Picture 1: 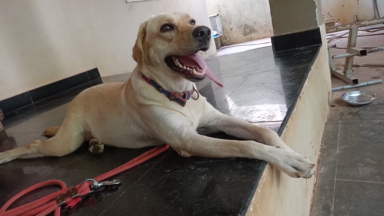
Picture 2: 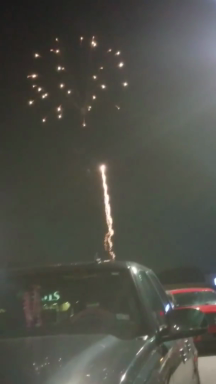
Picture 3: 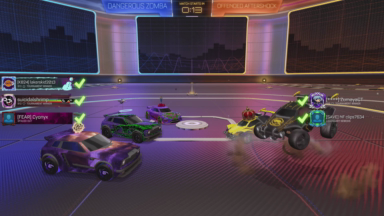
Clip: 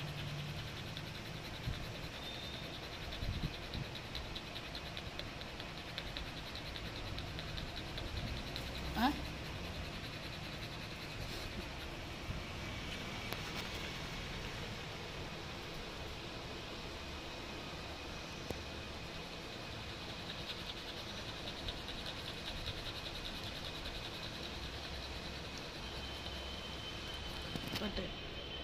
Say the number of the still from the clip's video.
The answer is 1